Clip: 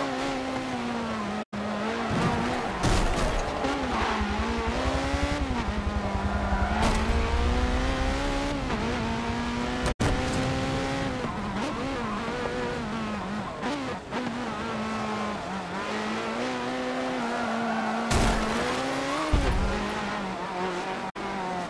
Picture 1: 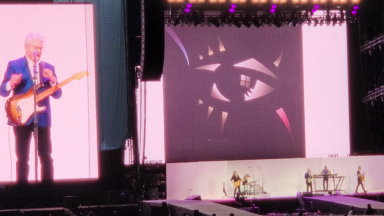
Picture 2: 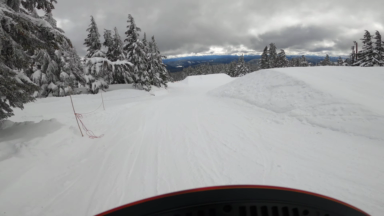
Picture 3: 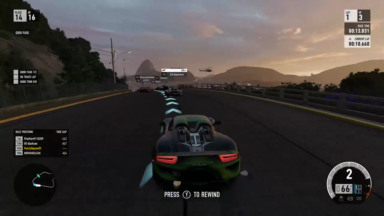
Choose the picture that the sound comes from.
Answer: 3